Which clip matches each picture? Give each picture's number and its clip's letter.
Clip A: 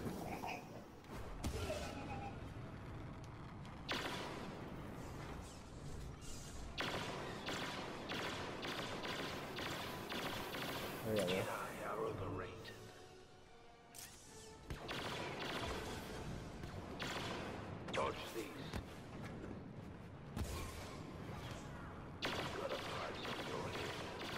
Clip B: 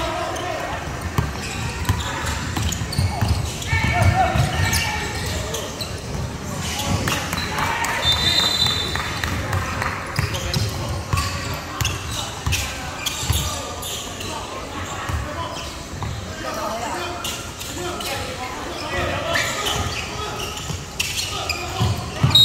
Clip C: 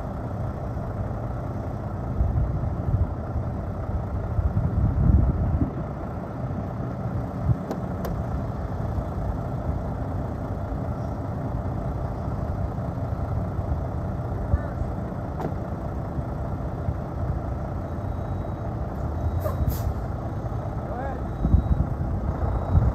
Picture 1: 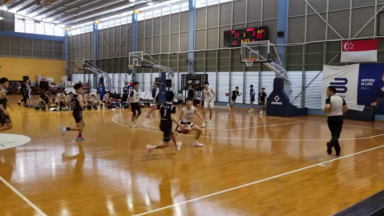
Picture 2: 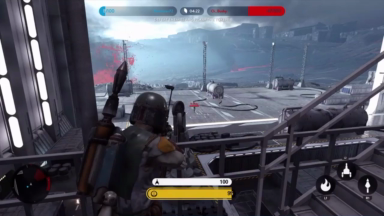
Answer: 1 B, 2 A